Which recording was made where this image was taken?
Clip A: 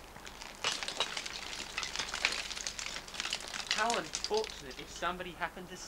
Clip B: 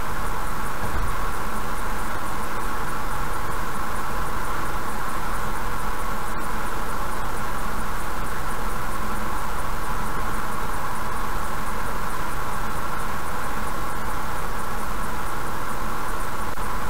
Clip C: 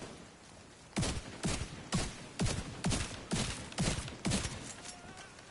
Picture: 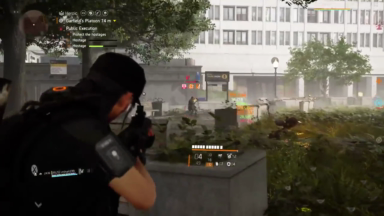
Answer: C